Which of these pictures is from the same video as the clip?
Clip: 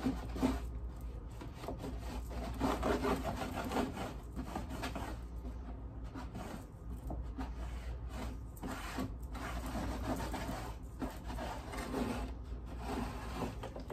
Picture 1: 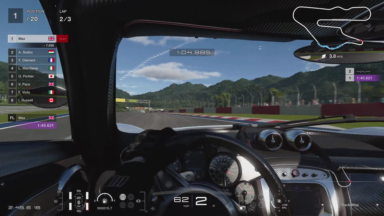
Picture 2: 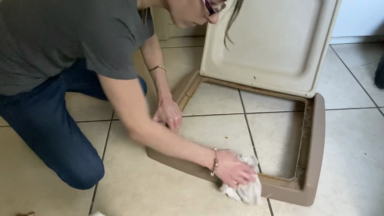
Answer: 2